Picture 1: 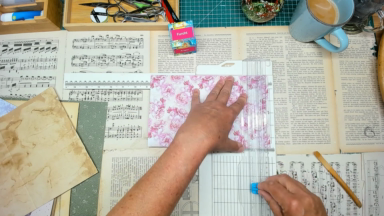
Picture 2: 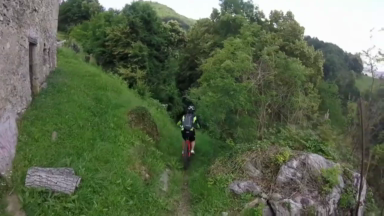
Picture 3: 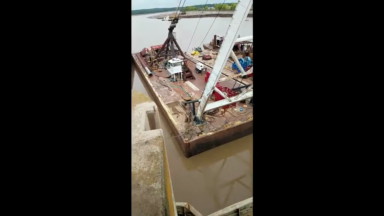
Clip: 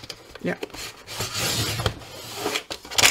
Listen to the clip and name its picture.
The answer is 1